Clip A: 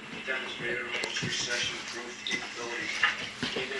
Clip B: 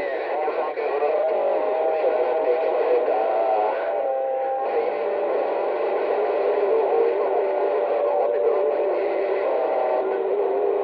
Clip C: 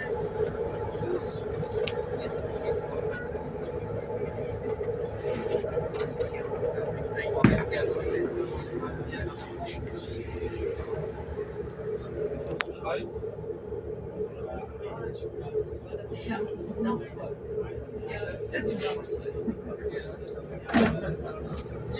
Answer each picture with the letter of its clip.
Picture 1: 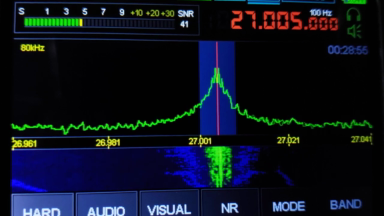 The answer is B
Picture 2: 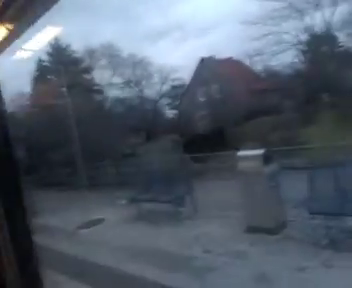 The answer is C